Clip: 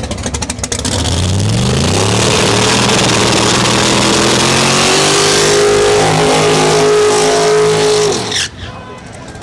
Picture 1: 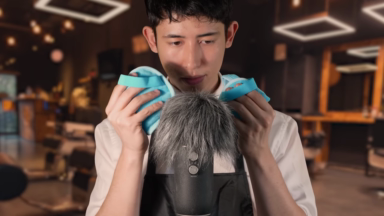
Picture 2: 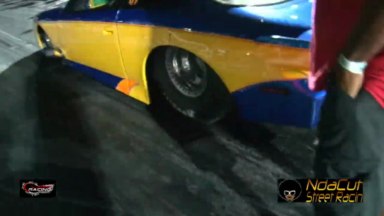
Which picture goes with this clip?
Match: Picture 2